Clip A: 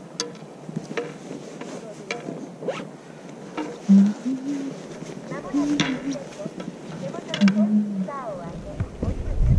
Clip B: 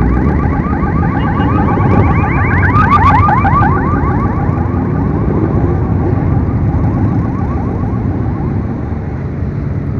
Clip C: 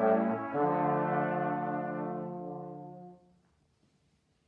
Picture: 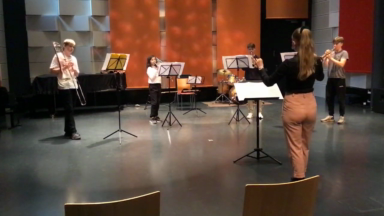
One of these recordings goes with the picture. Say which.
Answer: C